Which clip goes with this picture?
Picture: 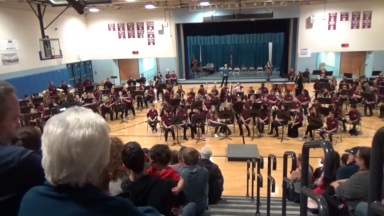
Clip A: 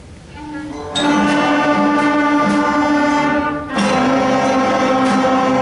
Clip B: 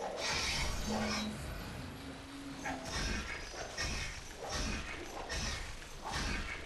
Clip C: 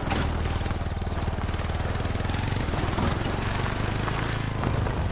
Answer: A